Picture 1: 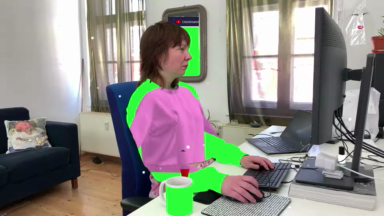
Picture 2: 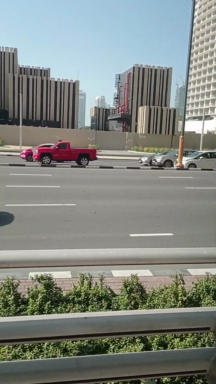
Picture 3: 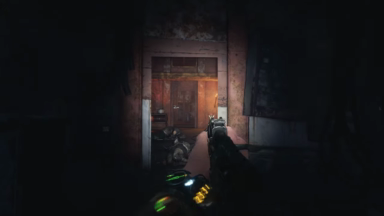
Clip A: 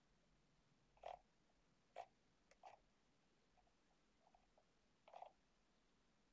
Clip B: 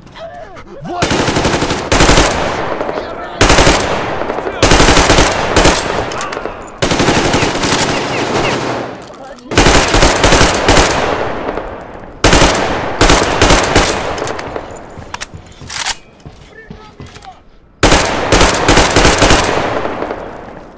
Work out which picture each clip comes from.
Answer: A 1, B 3